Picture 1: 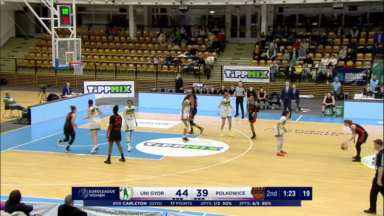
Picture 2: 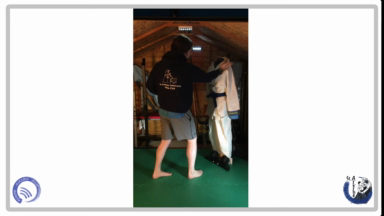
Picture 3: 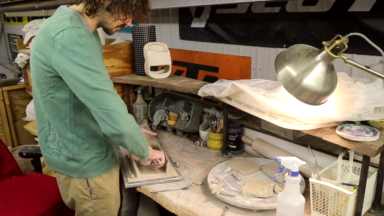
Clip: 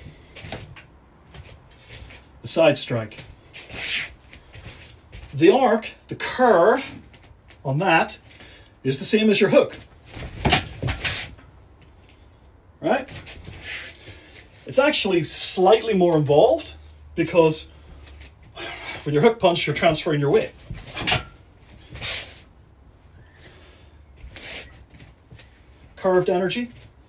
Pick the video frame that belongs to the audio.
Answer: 2